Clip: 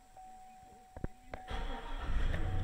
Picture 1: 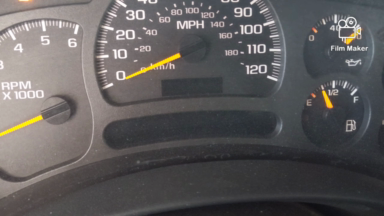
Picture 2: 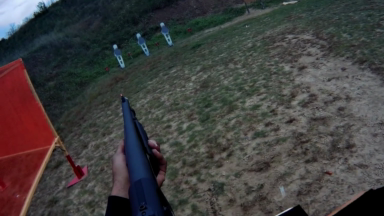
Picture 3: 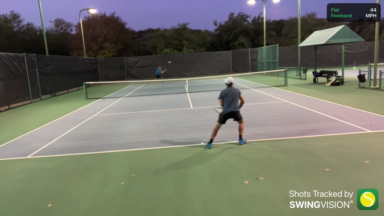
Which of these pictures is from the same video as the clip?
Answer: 1